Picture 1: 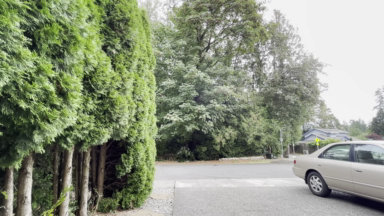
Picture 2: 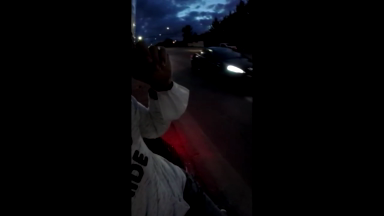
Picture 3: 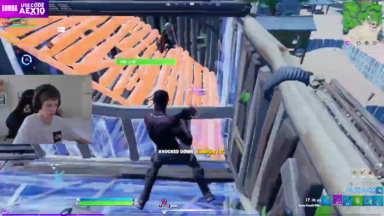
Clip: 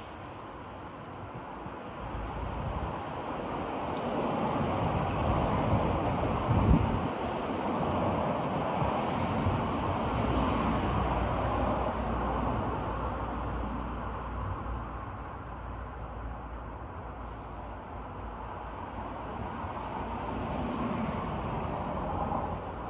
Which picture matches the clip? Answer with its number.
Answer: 1